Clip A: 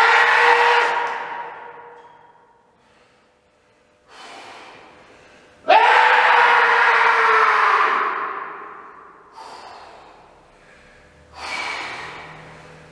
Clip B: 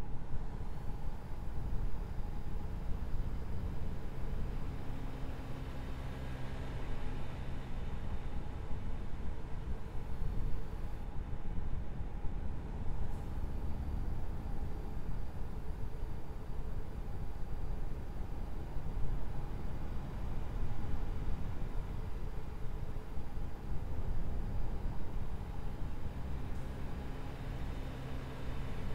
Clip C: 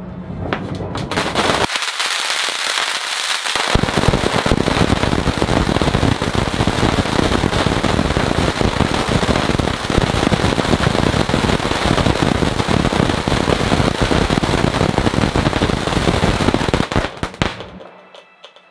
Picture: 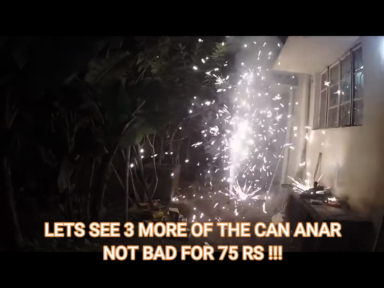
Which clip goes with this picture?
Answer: C